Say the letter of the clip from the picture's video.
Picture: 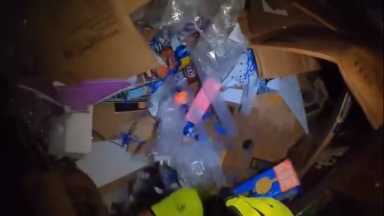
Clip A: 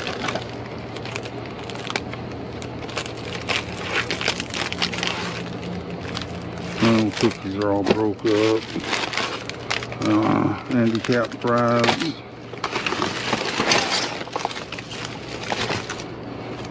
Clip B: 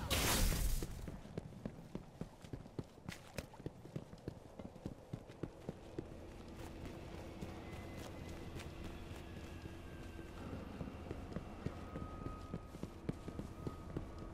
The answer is A